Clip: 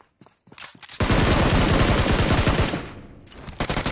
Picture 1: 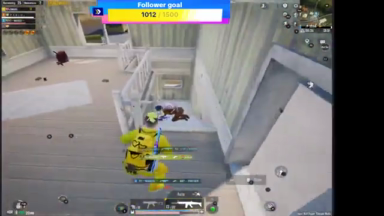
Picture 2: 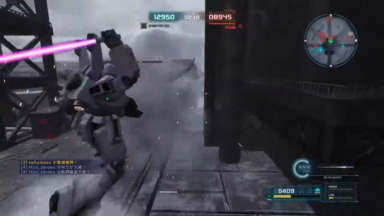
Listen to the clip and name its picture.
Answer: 1